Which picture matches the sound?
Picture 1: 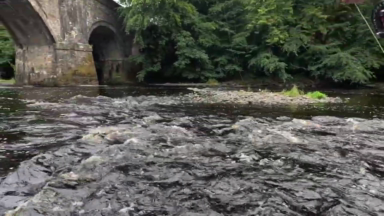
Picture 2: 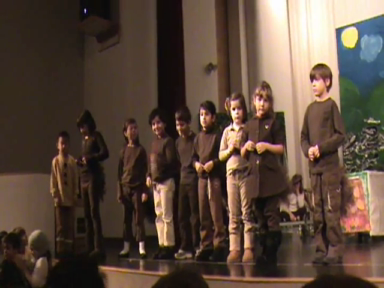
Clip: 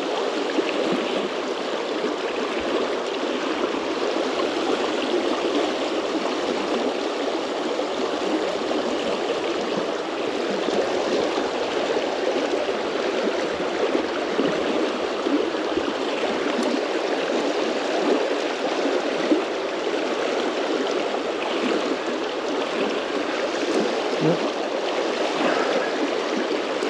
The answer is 1